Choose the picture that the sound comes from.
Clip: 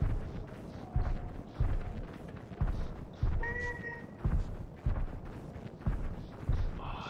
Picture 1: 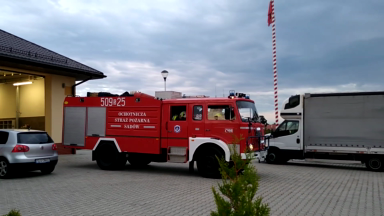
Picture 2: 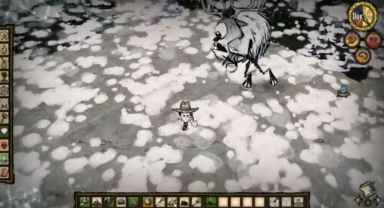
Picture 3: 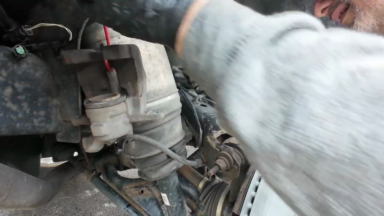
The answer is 2